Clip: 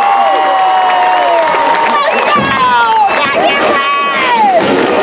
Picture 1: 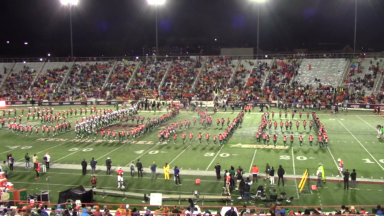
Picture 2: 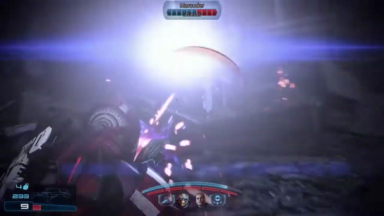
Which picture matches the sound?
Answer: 1